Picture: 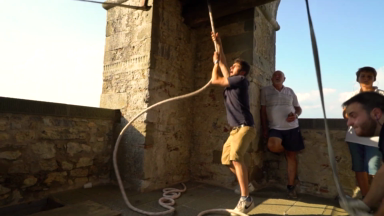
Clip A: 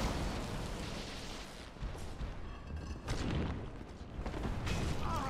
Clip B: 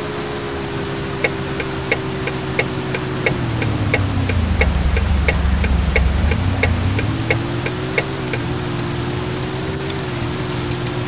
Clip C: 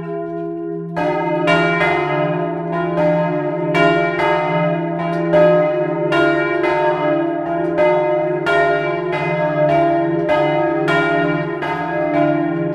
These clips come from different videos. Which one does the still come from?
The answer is C